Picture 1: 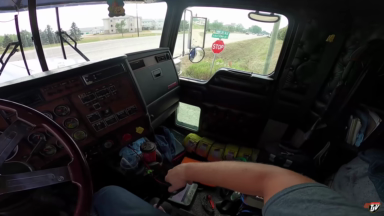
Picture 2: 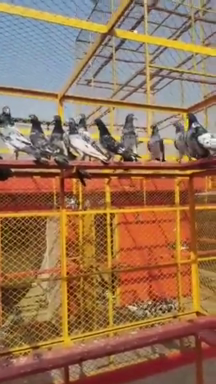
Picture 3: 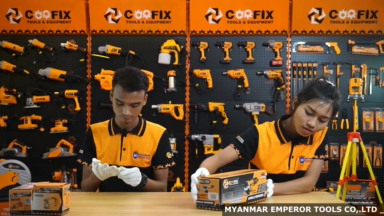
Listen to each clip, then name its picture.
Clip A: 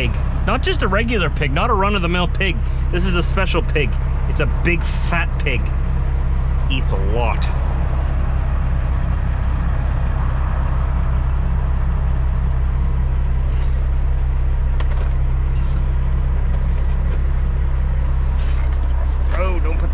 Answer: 1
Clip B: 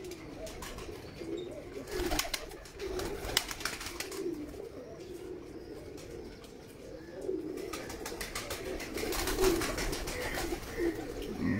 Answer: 2